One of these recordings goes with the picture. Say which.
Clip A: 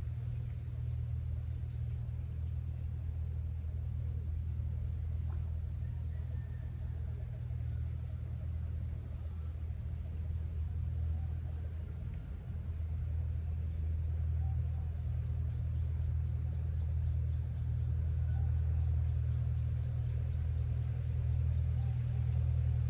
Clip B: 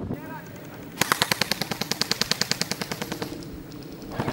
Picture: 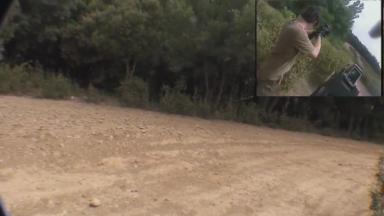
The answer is B